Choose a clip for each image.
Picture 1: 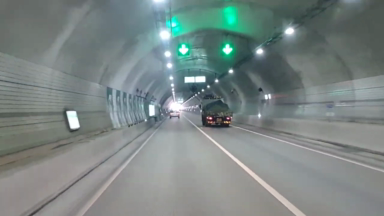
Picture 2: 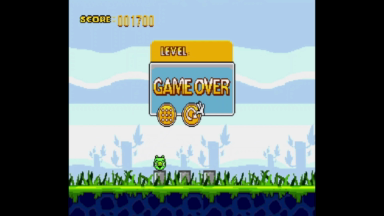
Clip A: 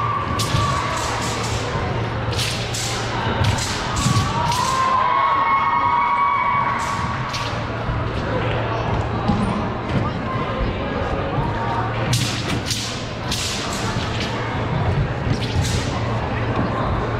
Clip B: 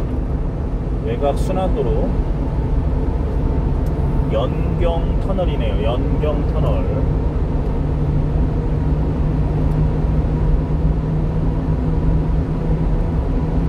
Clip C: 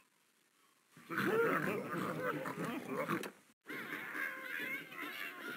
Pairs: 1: B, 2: C